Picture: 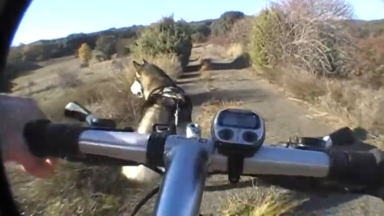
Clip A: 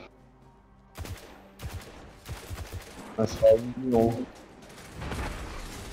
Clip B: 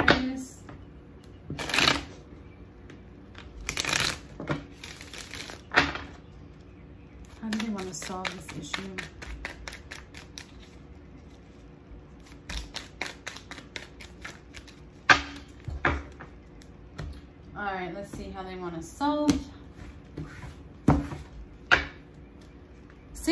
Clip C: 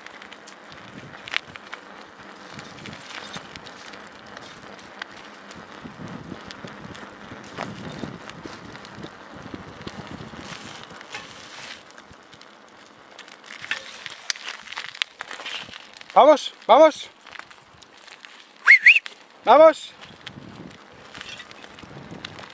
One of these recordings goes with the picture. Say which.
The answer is C